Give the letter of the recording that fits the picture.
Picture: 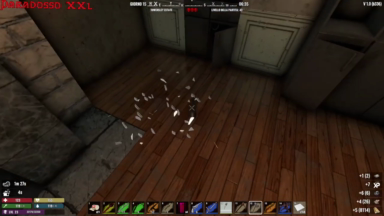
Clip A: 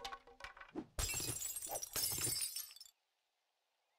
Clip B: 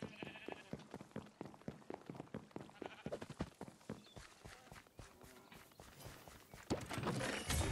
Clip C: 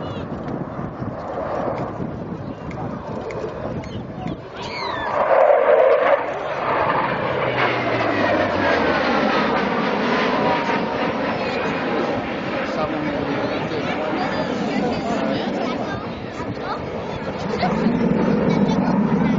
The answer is A